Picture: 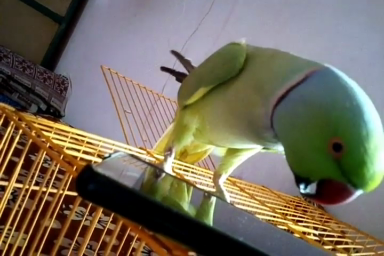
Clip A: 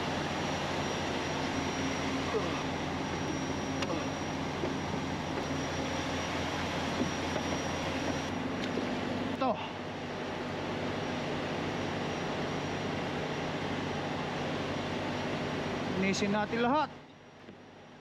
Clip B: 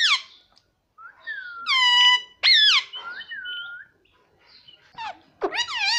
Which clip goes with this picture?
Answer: B